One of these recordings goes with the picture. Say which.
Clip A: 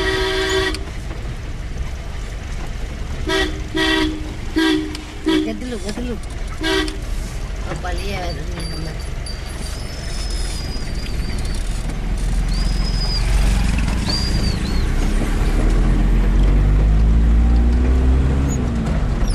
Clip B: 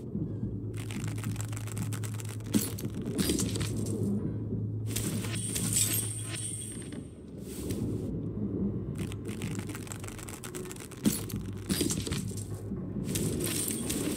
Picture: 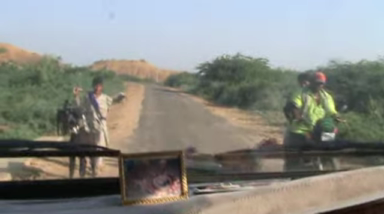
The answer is A